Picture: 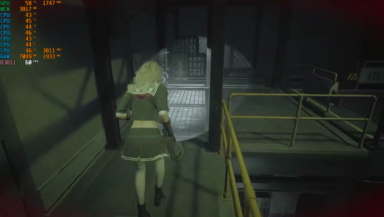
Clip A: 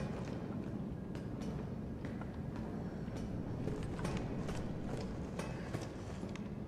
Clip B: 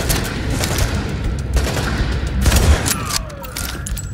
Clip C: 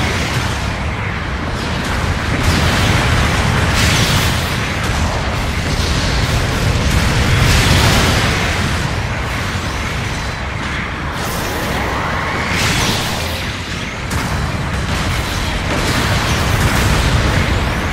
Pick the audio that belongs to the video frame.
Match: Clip A